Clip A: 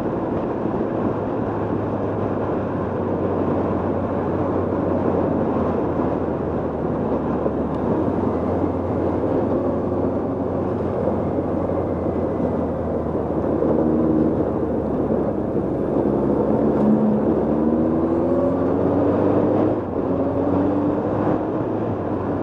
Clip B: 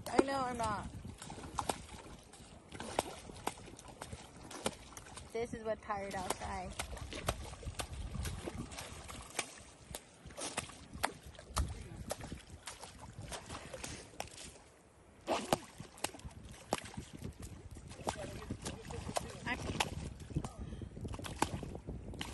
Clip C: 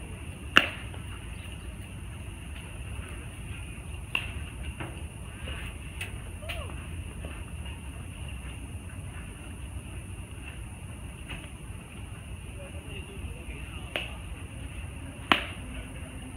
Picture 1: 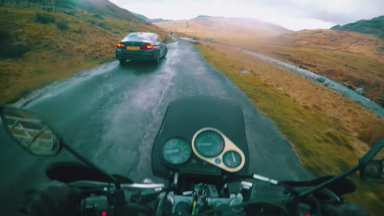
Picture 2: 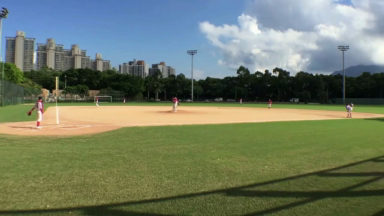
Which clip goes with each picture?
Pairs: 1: A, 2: C